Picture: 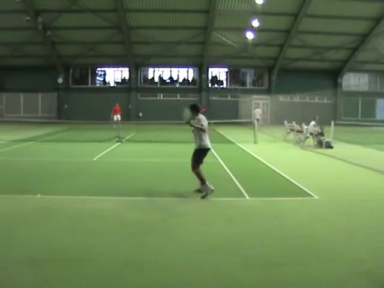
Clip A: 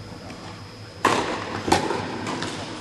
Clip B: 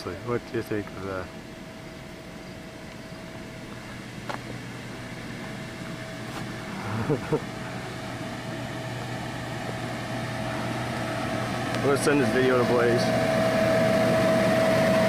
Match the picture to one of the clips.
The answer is A